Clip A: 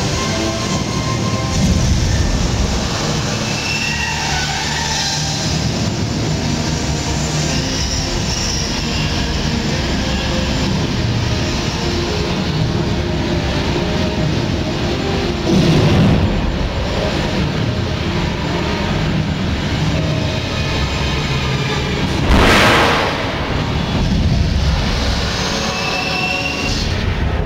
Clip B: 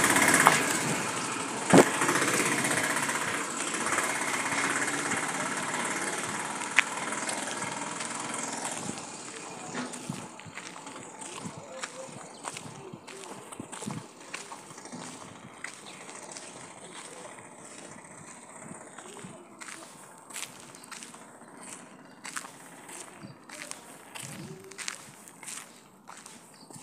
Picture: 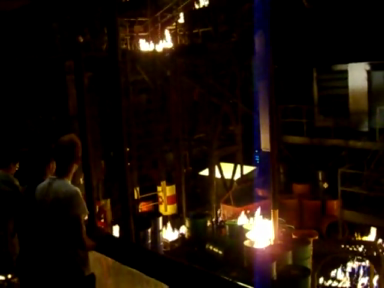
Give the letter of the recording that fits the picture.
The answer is A